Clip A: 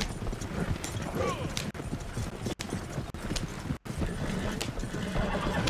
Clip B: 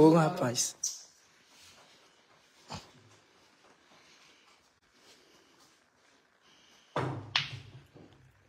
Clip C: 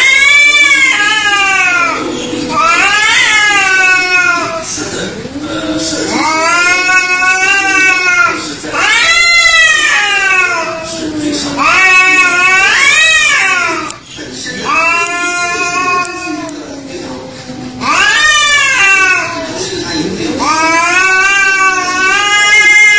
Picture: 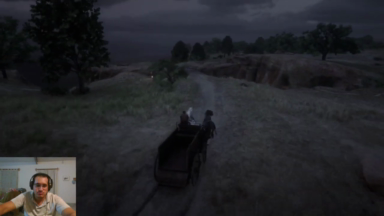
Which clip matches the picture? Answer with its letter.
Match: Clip A